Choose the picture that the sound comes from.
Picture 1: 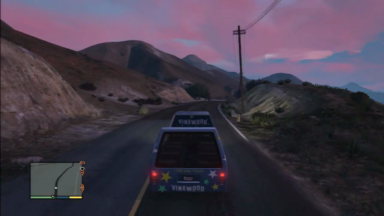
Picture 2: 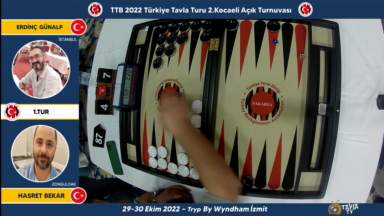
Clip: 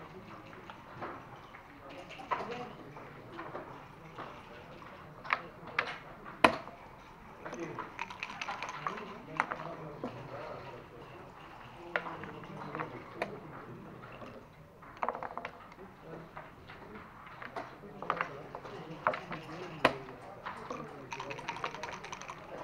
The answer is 2